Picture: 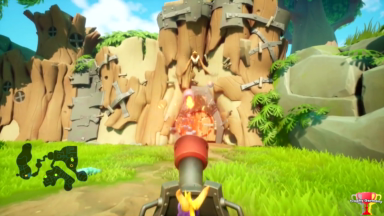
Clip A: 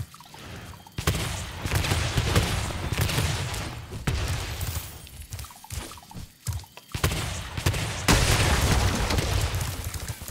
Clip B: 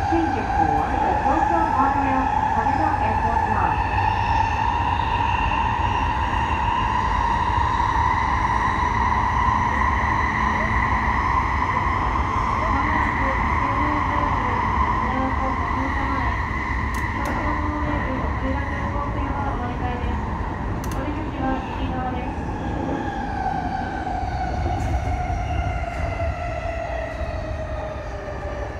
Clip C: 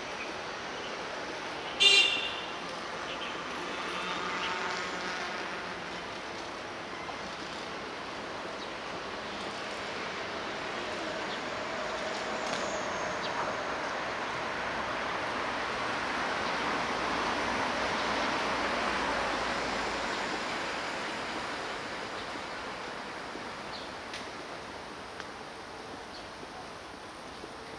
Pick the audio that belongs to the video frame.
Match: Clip A